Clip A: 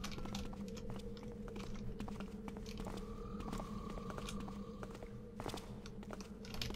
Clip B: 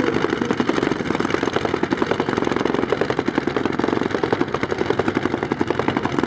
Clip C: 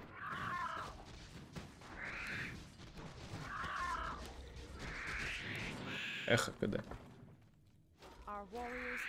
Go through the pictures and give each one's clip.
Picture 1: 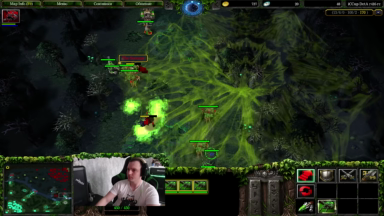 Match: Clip C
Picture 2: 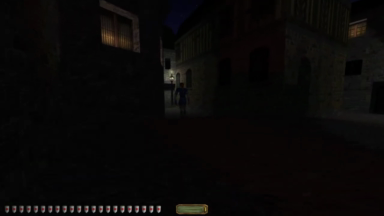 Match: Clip A